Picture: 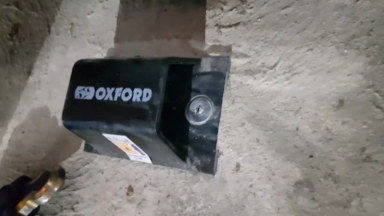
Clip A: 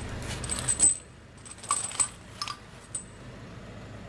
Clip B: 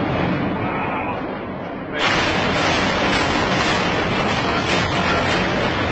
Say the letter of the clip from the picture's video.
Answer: A